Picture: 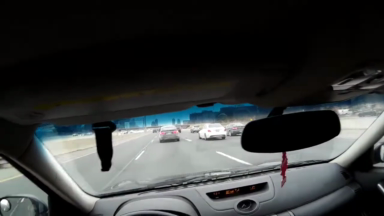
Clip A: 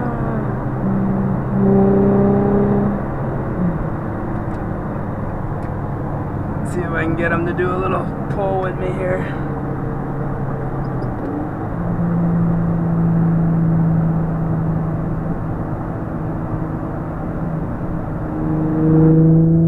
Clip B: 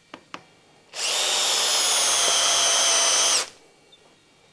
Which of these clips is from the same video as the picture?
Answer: A